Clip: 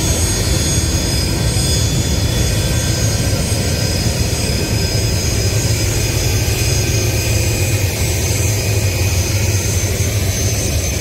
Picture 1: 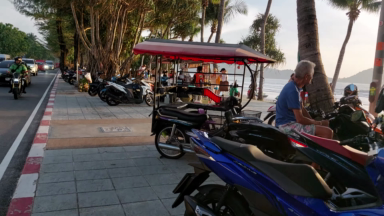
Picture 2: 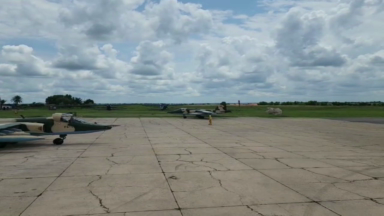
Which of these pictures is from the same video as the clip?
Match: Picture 2